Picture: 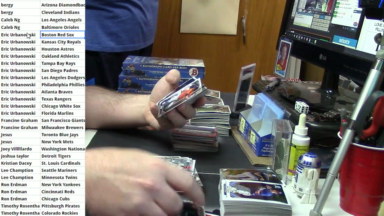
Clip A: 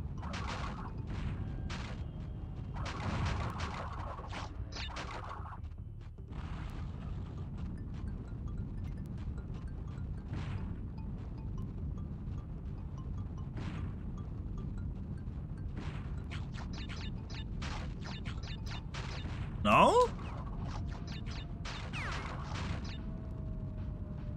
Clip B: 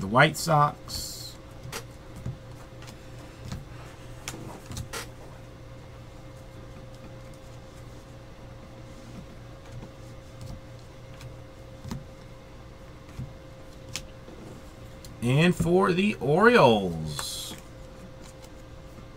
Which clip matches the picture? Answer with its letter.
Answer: B